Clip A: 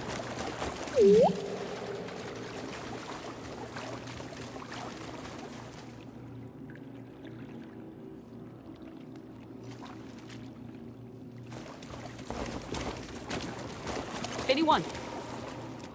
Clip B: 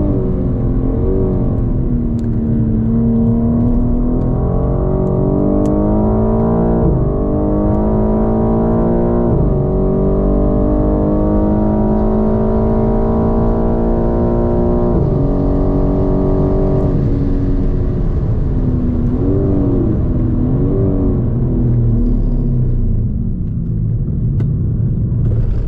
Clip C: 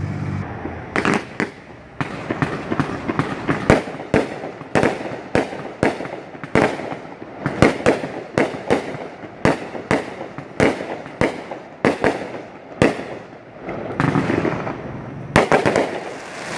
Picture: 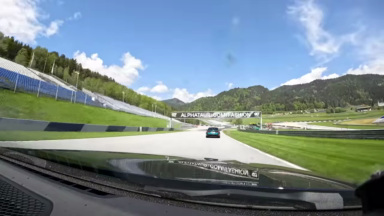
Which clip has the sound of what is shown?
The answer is B